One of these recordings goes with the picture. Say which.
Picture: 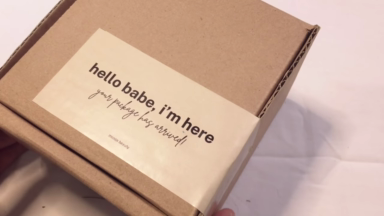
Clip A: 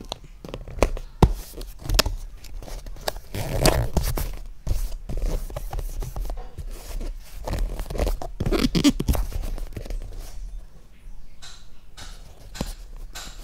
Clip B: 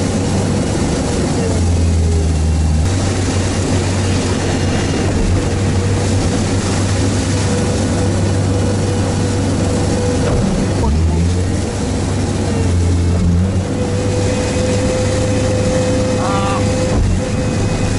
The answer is A